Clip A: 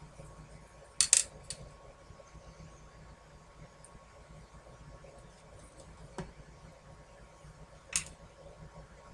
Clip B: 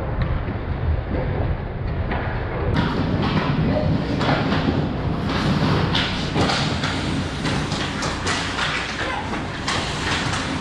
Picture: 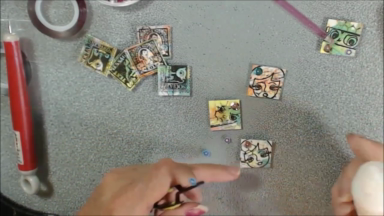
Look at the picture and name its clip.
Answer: A